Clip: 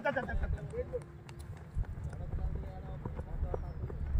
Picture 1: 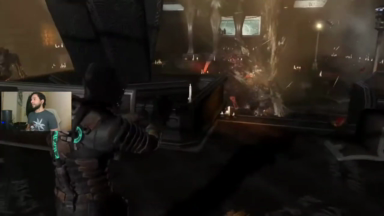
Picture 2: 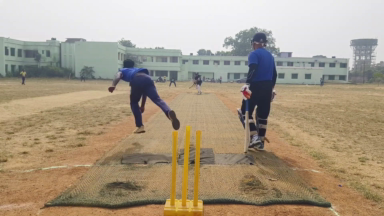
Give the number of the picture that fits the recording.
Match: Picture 2